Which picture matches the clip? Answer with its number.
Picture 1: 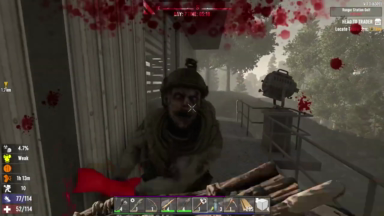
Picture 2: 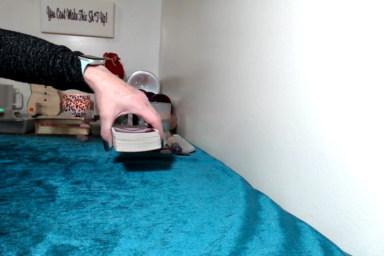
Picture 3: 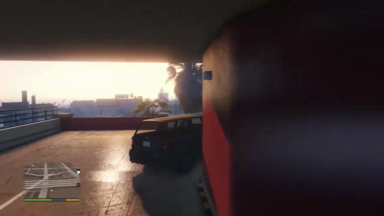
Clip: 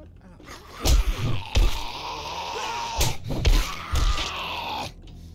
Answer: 1